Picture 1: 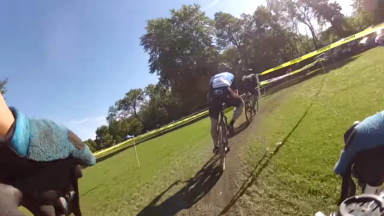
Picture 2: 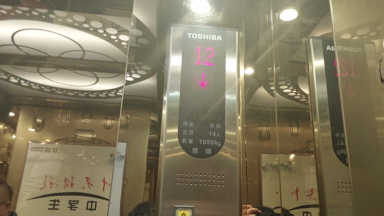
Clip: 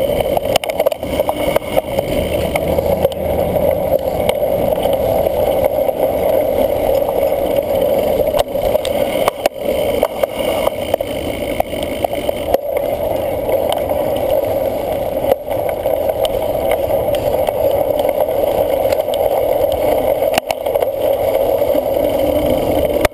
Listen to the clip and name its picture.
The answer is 1